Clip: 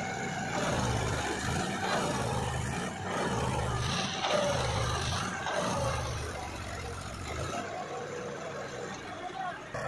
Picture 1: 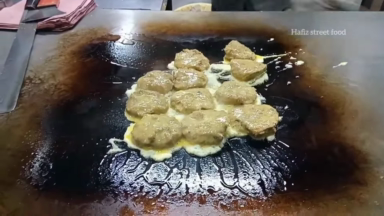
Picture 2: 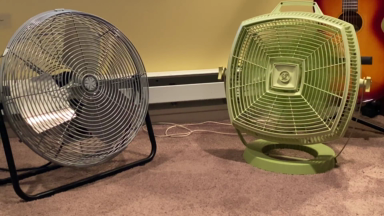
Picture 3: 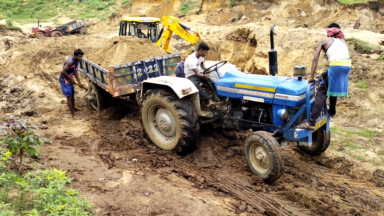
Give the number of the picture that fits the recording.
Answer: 3